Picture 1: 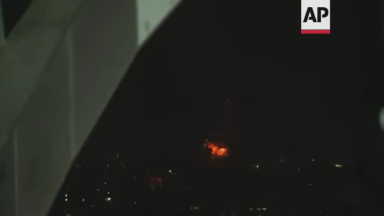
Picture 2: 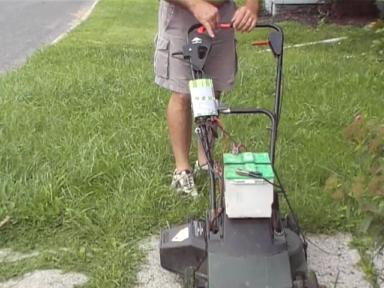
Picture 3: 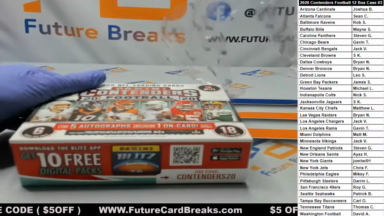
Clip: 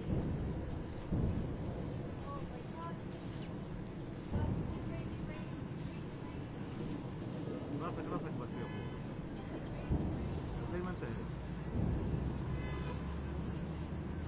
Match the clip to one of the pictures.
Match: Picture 1